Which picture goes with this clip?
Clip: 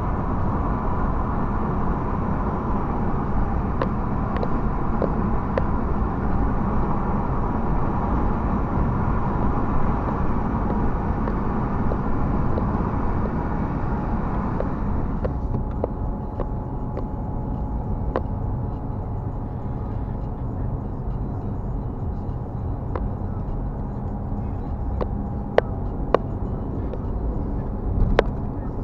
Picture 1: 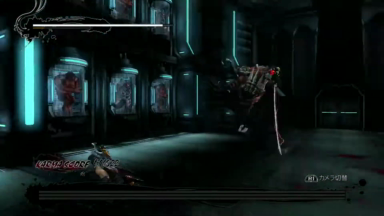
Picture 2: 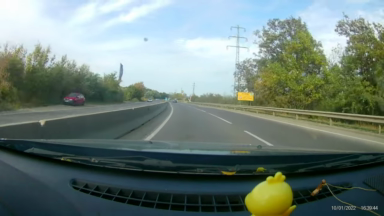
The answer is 2